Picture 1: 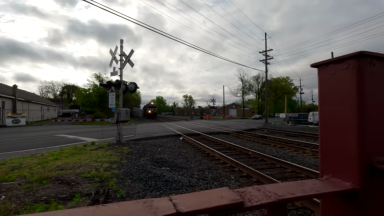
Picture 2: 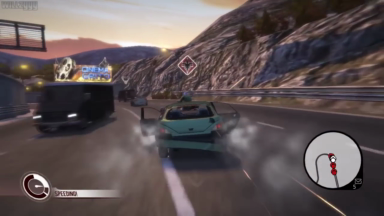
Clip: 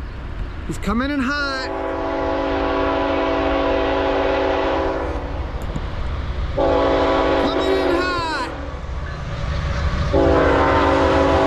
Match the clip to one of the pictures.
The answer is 1